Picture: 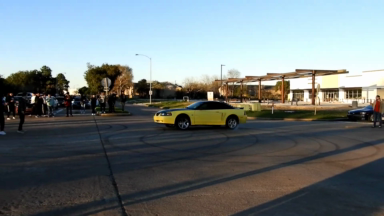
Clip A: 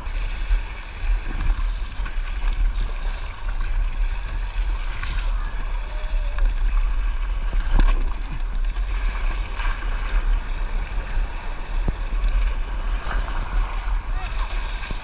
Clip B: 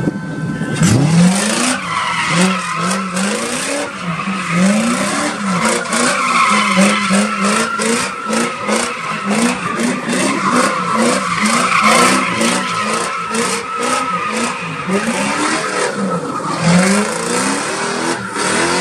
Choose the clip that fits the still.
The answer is B